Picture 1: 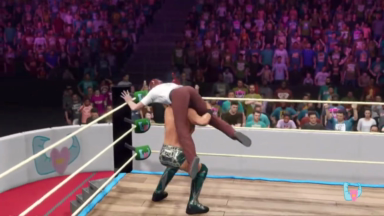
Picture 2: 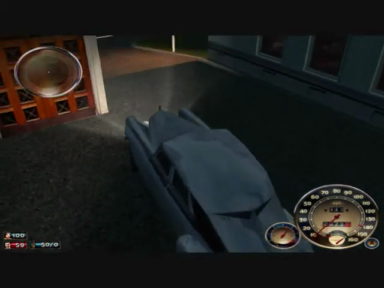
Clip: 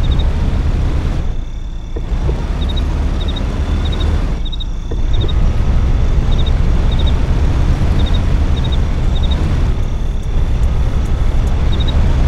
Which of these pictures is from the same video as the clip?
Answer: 2